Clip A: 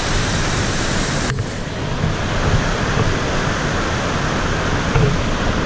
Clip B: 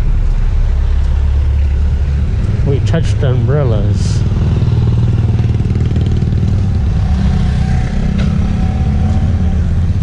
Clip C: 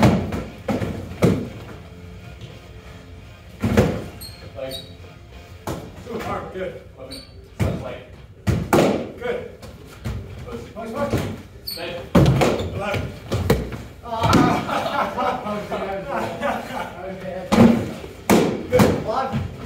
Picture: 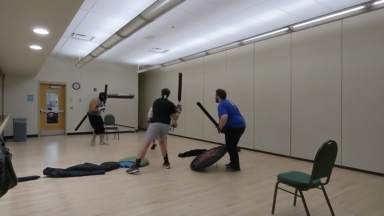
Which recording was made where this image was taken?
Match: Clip C